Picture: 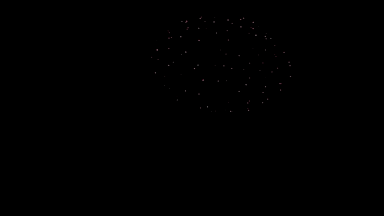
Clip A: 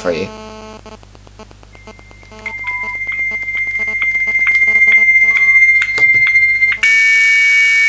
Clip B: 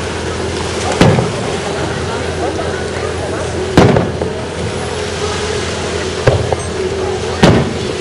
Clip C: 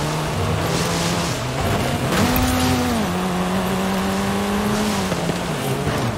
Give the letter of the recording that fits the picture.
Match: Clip B